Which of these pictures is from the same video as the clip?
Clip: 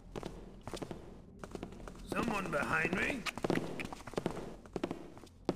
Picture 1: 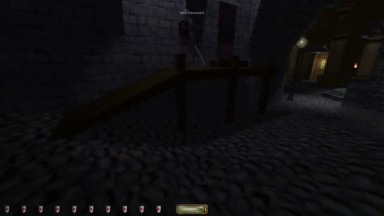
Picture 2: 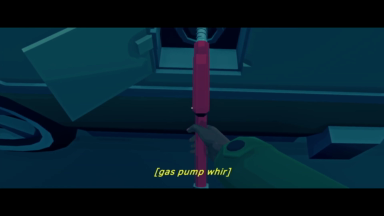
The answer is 1